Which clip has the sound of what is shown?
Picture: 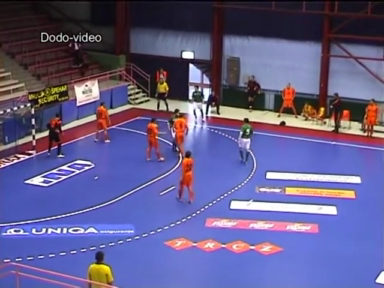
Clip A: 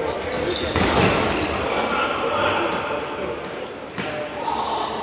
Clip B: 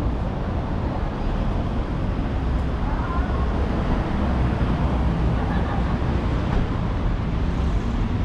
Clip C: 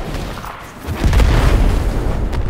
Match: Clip A